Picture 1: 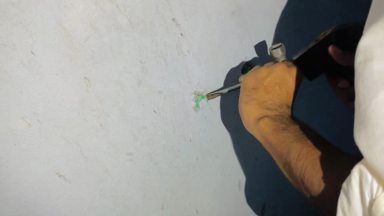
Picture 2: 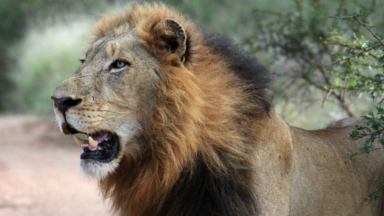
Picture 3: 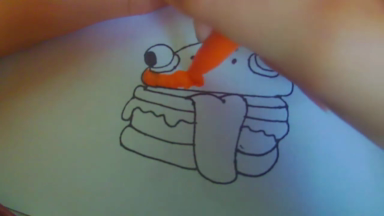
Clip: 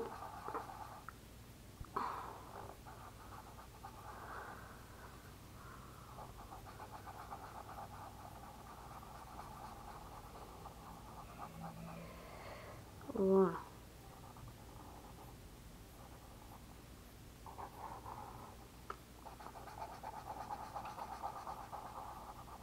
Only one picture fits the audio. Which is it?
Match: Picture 3